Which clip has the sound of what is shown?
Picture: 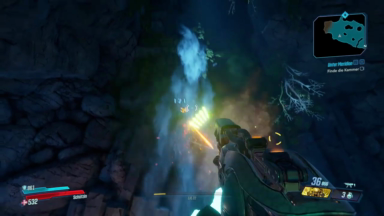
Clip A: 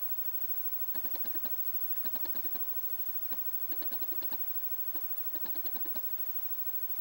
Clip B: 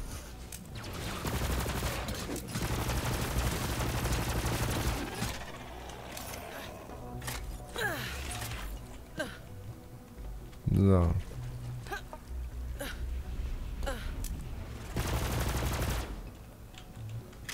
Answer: B